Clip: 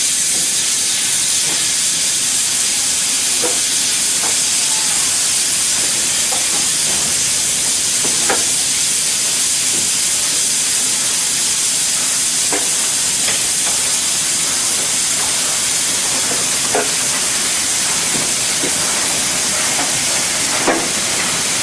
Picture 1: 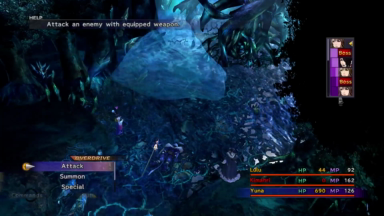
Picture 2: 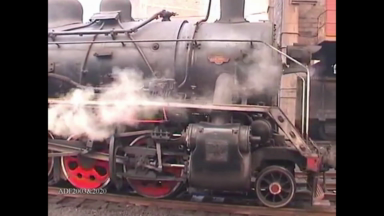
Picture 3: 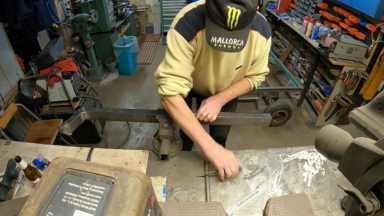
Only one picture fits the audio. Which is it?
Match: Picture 2